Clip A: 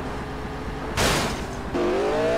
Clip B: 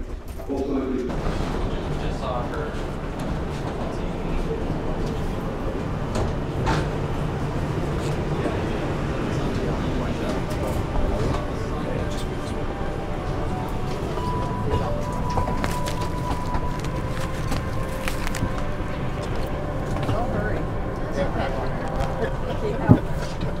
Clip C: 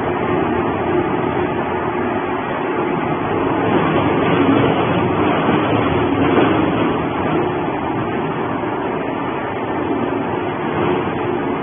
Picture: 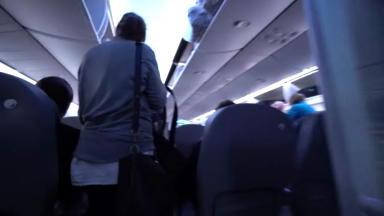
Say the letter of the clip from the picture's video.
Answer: B